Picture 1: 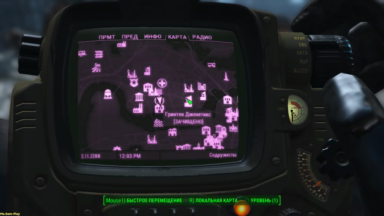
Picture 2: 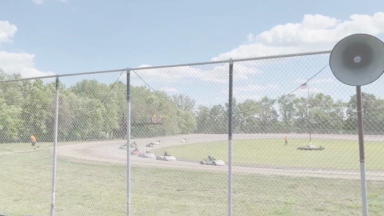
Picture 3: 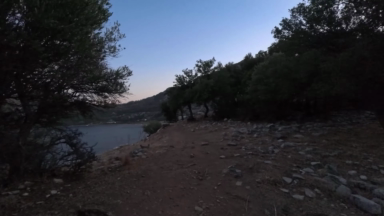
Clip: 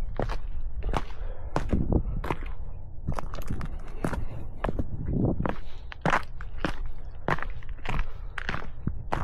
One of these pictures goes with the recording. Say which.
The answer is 3